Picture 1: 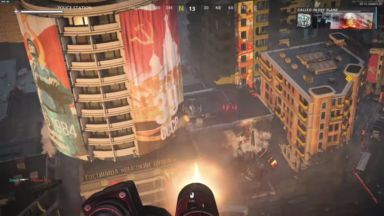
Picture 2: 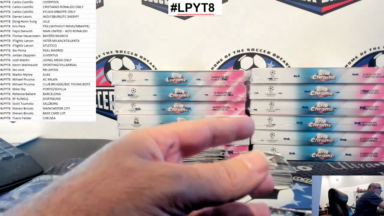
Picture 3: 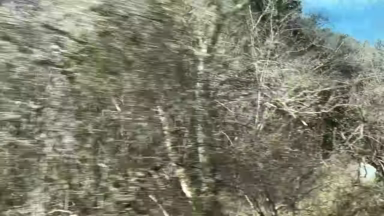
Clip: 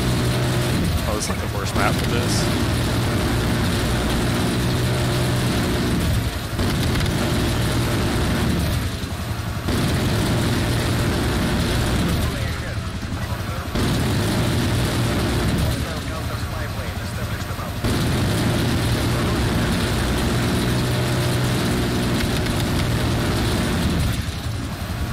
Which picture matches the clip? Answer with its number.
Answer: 1